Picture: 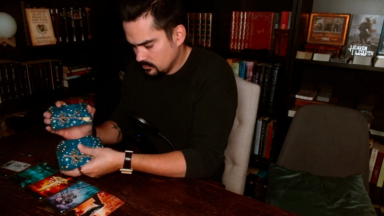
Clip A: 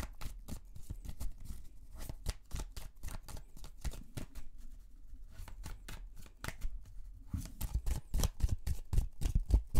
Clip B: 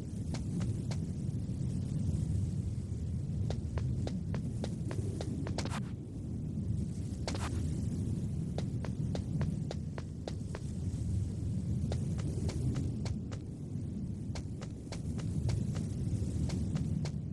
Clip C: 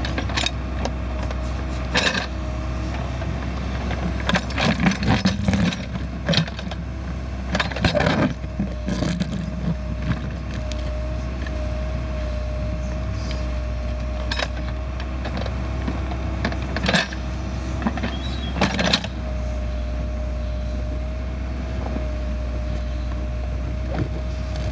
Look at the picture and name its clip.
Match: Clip A